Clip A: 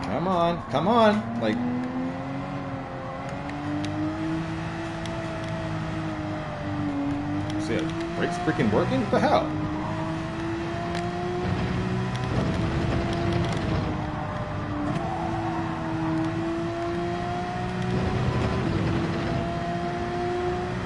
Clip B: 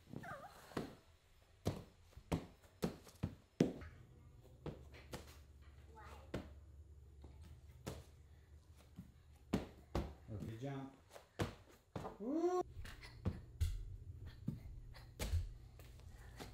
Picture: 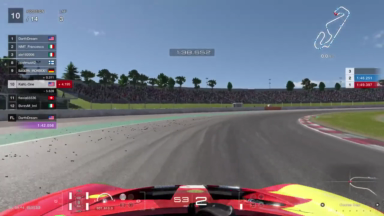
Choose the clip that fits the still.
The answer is A